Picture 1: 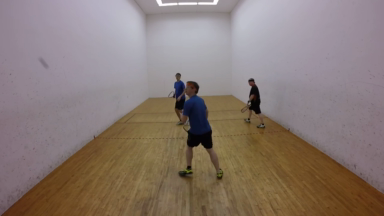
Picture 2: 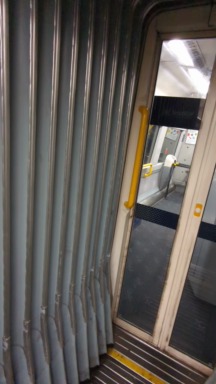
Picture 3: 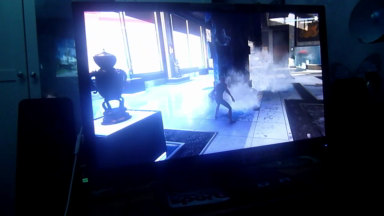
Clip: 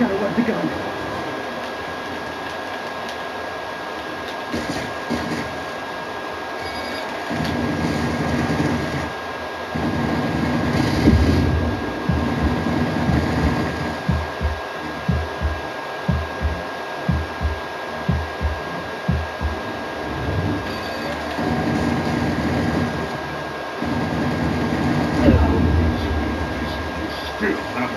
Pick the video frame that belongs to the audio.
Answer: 3